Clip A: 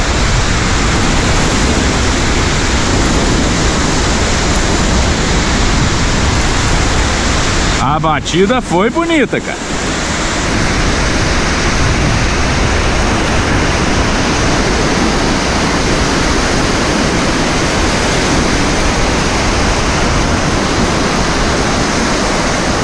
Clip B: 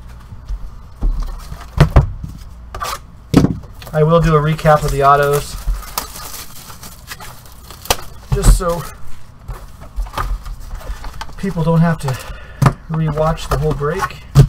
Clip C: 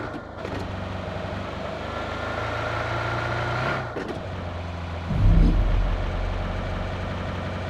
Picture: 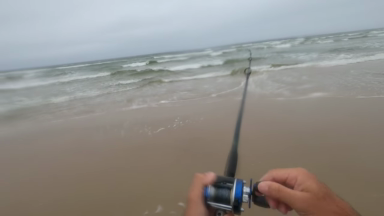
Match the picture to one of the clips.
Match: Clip A